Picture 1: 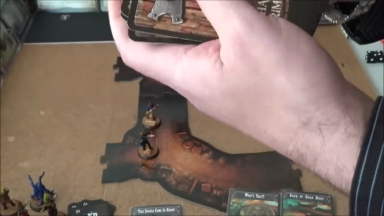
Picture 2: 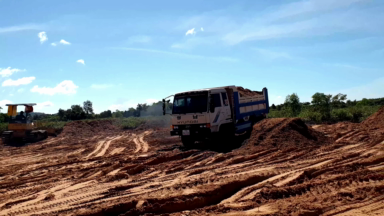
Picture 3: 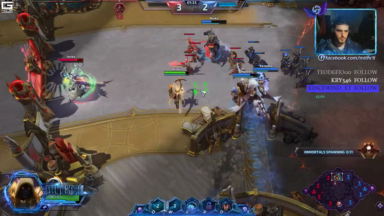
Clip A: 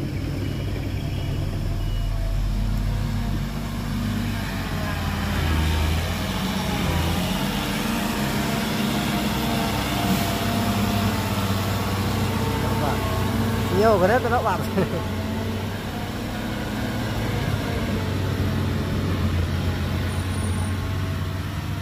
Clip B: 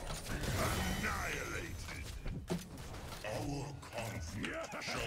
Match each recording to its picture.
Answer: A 2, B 3